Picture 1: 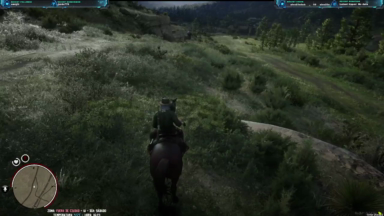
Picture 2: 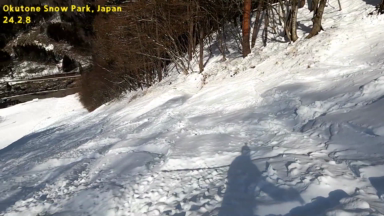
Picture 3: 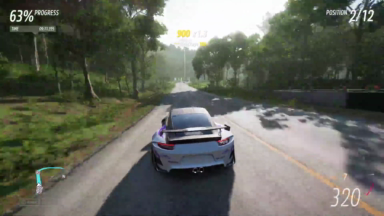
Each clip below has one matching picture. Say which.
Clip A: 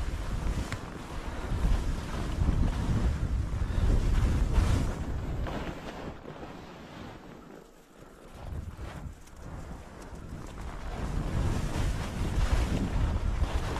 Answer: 2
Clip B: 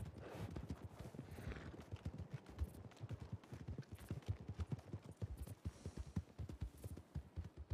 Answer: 1